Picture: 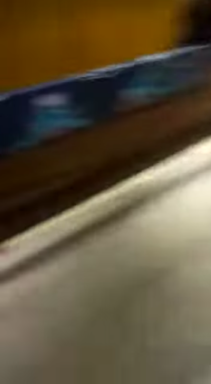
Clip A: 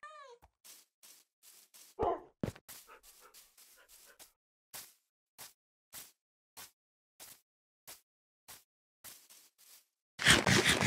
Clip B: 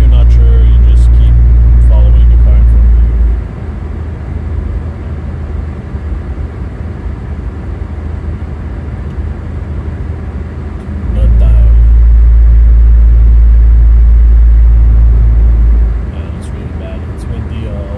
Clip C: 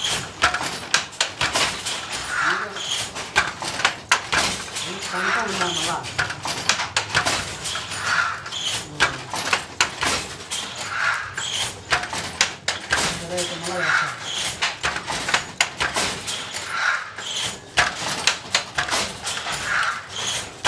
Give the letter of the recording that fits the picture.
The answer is C